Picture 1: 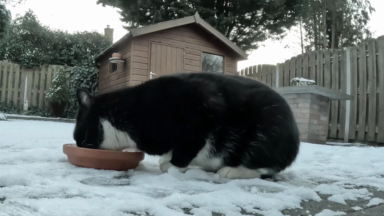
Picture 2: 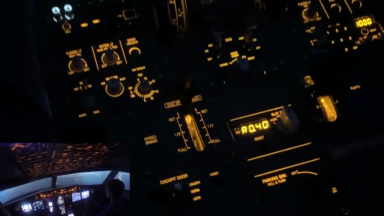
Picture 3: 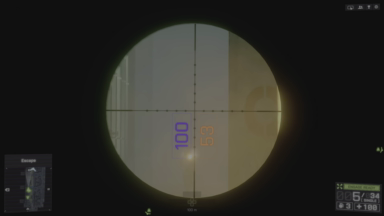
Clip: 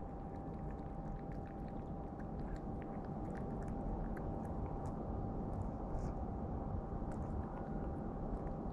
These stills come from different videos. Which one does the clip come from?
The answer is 1